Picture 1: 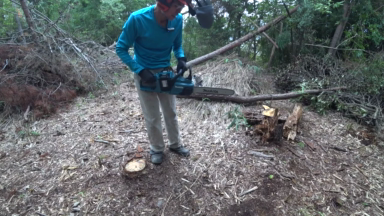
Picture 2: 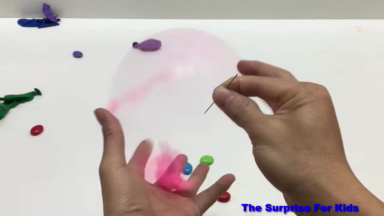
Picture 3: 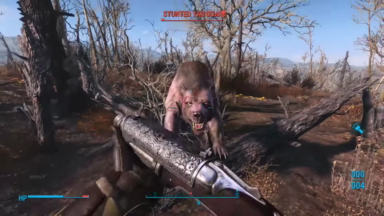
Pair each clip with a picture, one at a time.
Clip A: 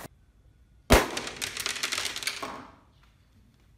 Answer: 2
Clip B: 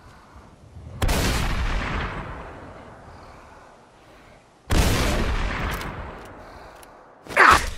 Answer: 3